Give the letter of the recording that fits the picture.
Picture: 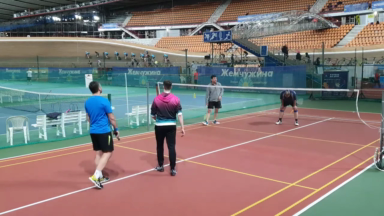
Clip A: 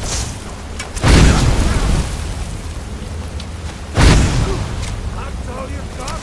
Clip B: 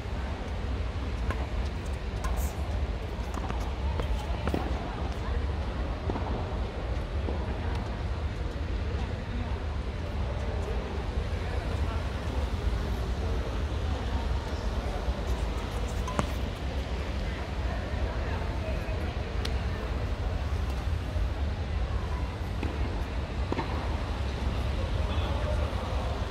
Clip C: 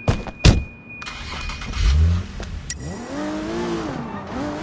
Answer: B